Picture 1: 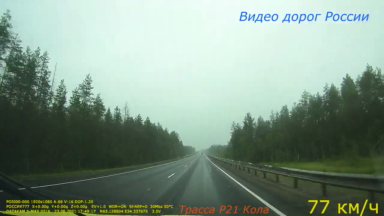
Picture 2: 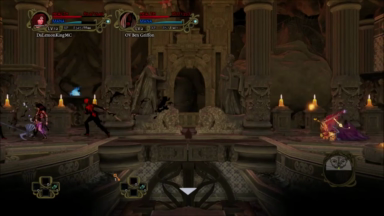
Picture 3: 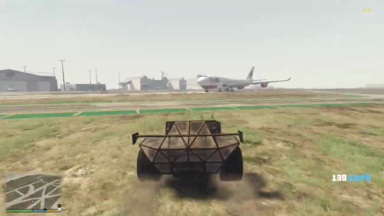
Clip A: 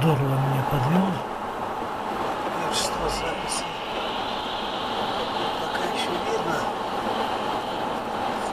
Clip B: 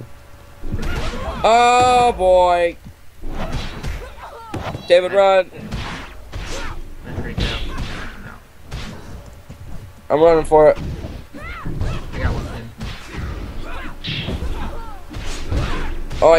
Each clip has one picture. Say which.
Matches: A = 1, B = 2